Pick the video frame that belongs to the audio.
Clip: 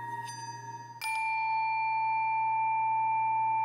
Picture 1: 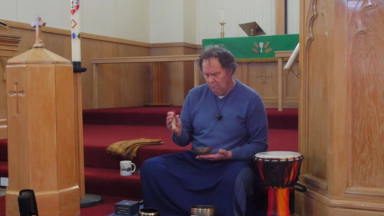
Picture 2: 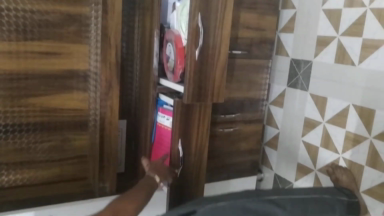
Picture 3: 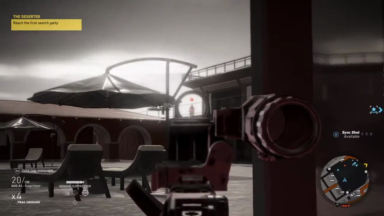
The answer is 1